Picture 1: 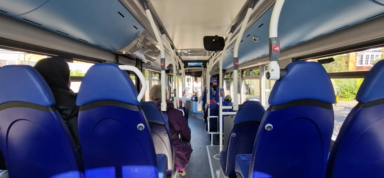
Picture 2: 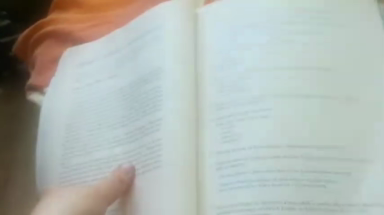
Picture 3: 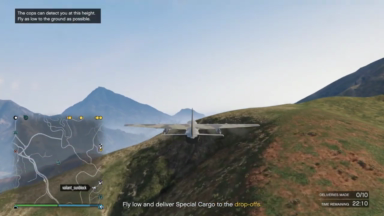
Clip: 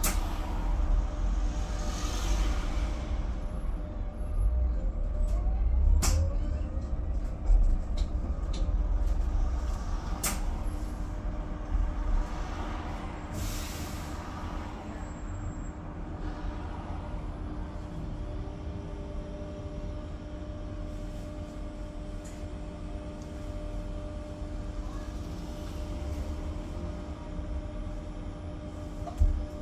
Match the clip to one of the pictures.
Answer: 1